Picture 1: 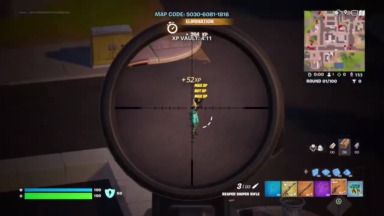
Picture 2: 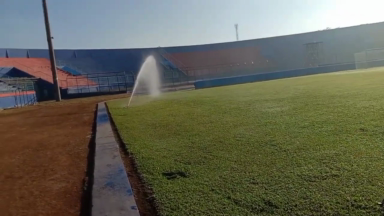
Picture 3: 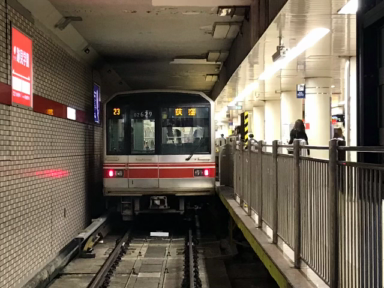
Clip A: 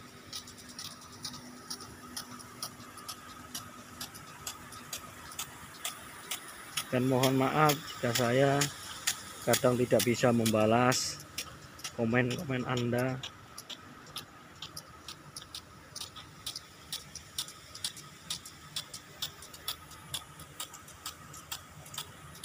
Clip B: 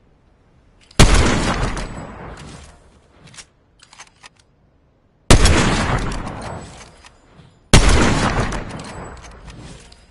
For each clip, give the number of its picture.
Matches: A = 2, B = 1